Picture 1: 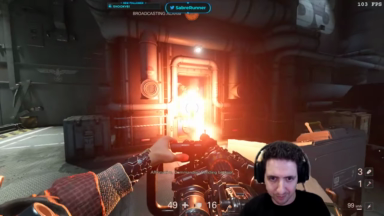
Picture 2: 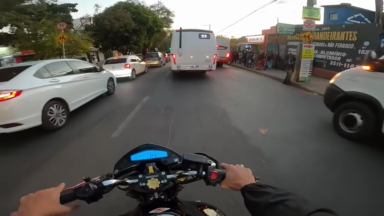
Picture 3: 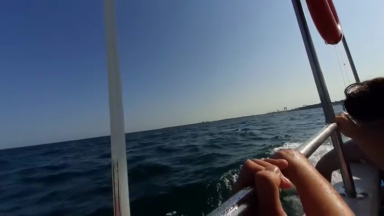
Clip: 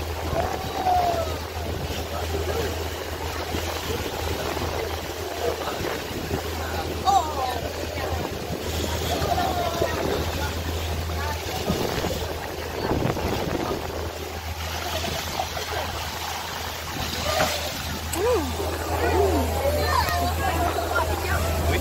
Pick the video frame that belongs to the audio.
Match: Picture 3